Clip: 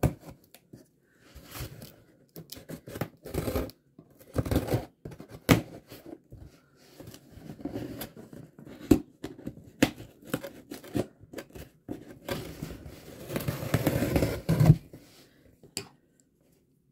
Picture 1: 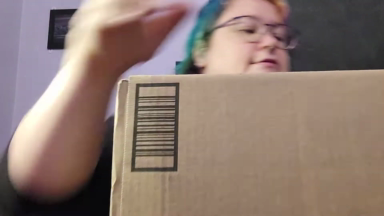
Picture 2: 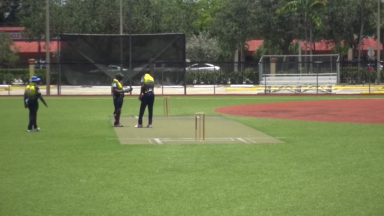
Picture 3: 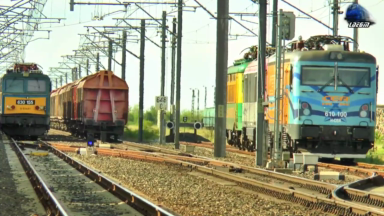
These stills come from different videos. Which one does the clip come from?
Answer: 1